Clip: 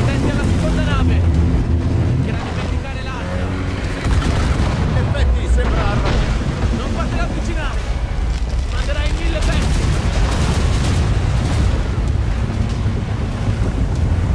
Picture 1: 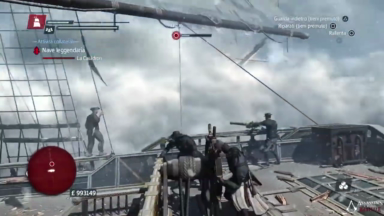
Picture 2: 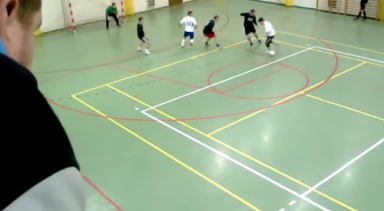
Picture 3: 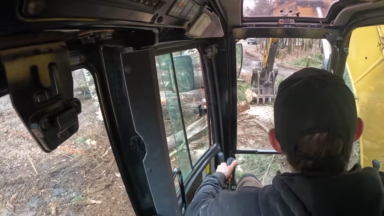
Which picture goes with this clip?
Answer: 1